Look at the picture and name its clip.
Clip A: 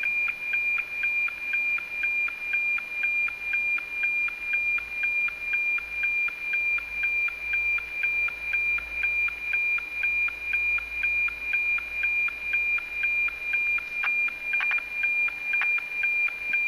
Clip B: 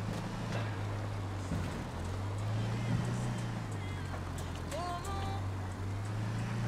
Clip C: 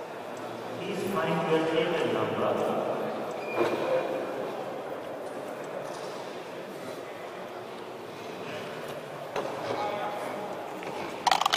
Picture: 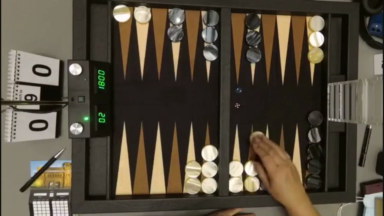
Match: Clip C